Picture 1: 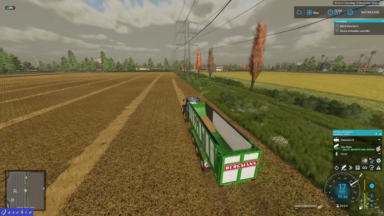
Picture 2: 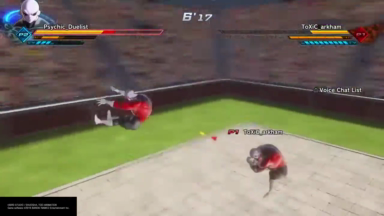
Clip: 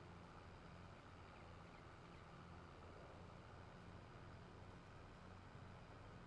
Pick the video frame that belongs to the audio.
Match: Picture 1